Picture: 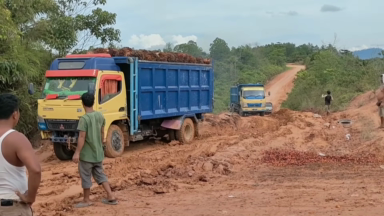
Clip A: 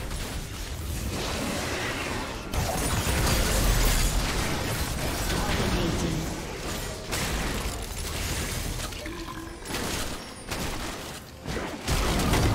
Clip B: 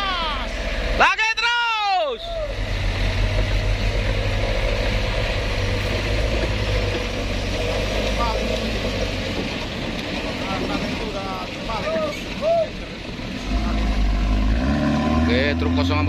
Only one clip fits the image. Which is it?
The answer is B